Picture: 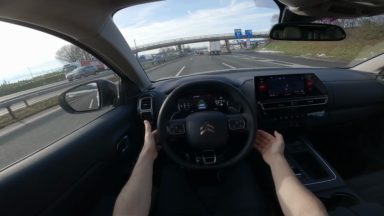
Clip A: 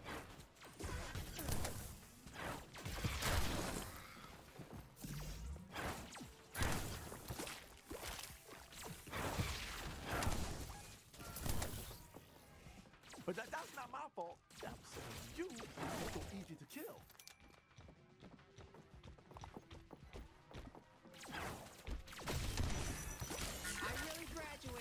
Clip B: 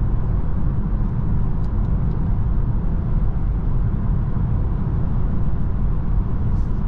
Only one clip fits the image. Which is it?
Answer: B